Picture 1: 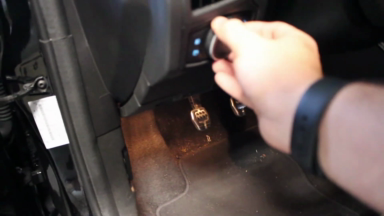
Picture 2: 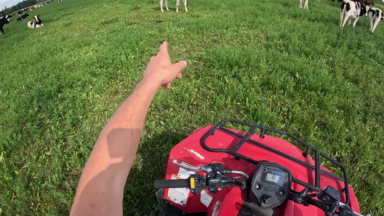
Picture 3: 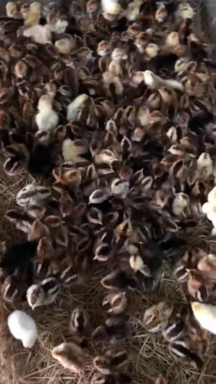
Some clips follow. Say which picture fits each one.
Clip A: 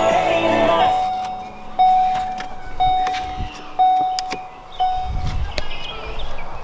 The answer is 1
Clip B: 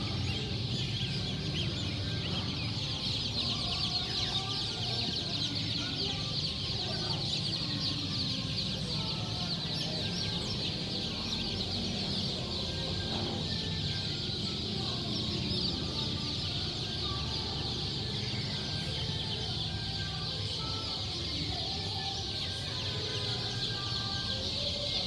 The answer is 3